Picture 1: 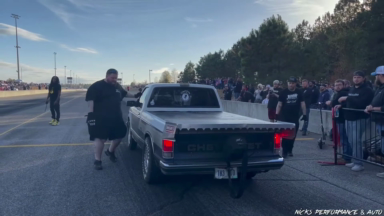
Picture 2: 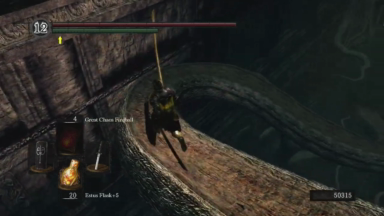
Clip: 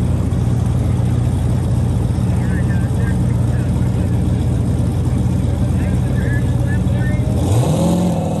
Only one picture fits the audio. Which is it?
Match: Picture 1